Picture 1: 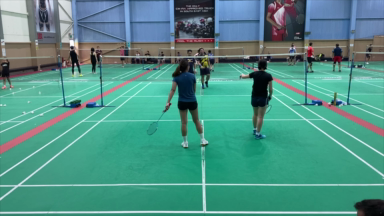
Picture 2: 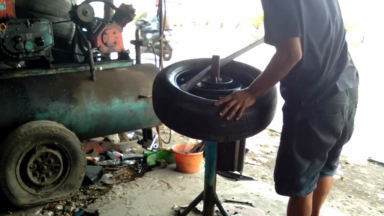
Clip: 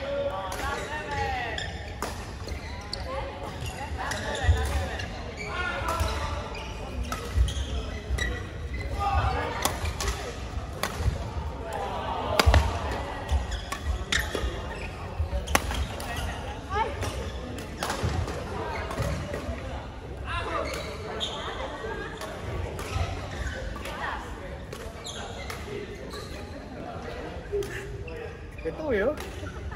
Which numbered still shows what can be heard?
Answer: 1